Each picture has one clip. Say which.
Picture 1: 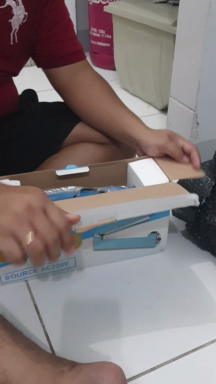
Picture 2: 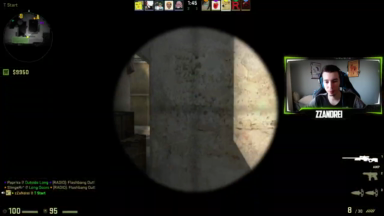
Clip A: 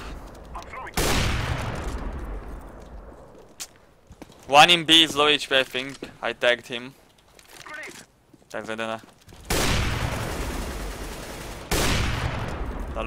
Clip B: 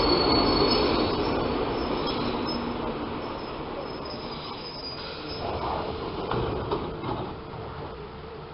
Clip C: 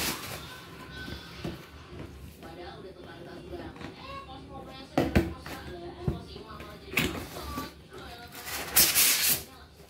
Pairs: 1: C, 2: A